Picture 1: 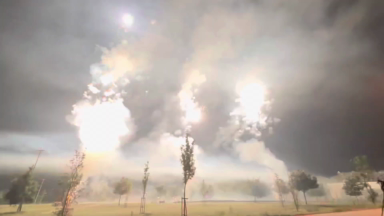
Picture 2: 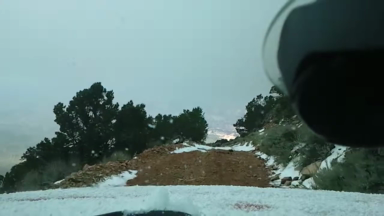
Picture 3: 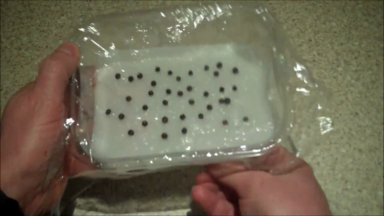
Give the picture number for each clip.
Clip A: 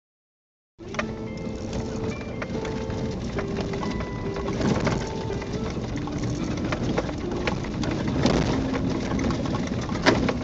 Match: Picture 2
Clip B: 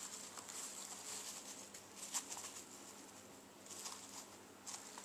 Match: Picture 3